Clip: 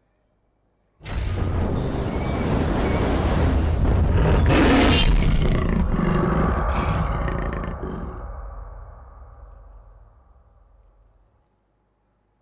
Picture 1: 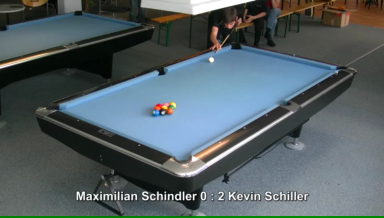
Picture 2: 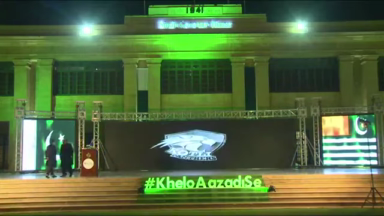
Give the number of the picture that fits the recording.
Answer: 2